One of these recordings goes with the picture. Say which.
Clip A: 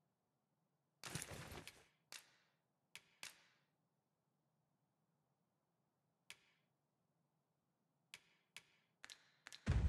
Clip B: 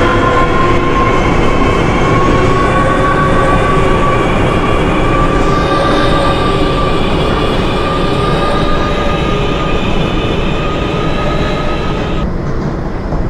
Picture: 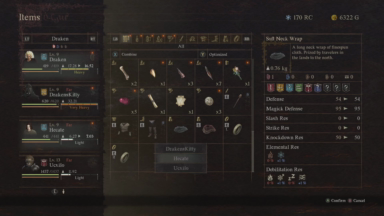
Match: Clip A